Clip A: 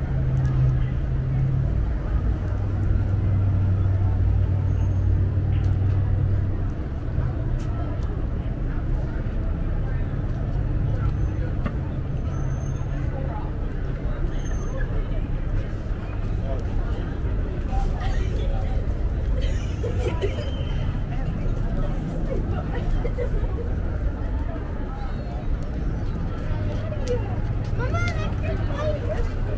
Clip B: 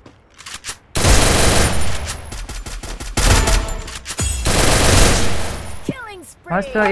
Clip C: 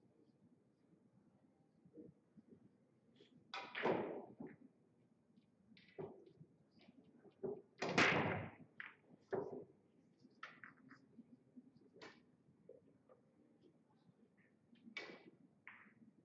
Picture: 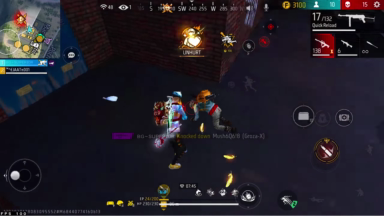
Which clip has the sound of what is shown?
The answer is B